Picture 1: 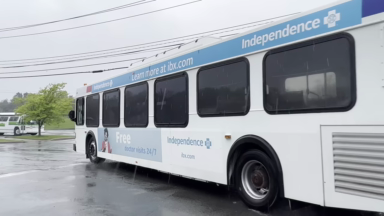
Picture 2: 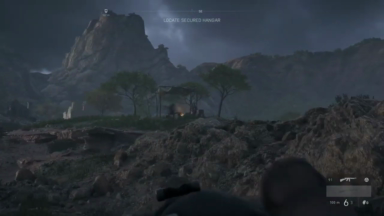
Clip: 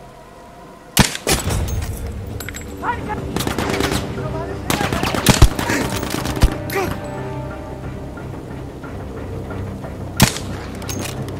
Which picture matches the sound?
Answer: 2